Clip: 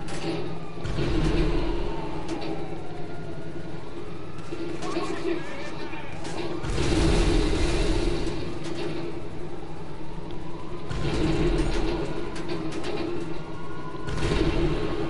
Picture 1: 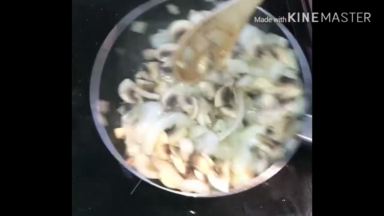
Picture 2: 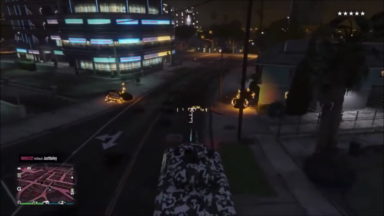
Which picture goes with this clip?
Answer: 2